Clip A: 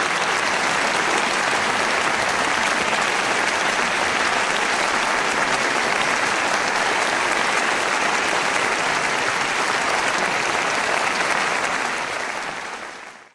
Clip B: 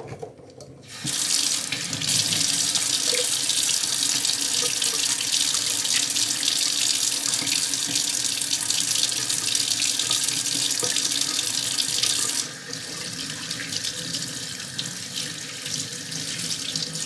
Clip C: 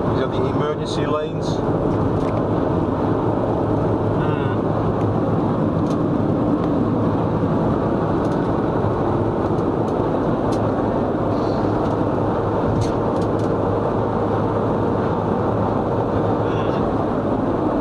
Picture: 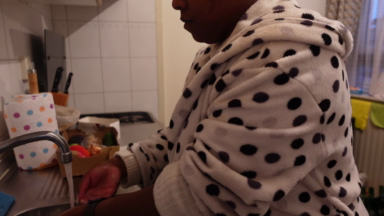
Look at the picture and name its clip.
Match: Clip B